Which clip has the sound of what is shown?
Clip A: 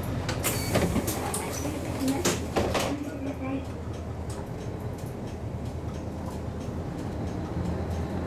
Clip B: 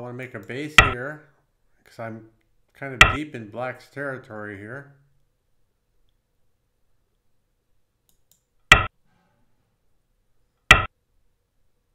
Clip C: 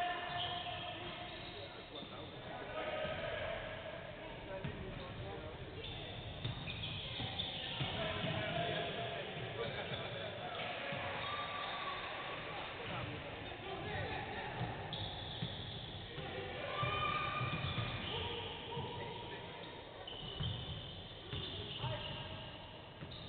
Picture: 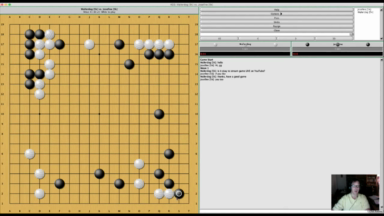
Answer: B